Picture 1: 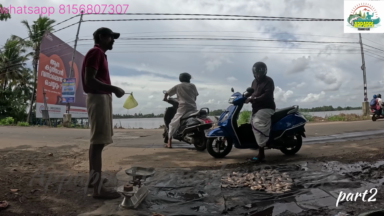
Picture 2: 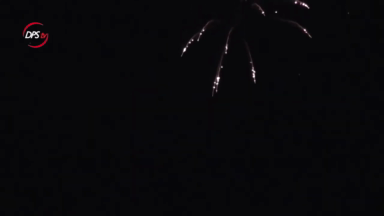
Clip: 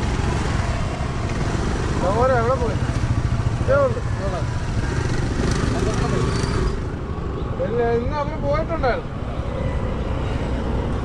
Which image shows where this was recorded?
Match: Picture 1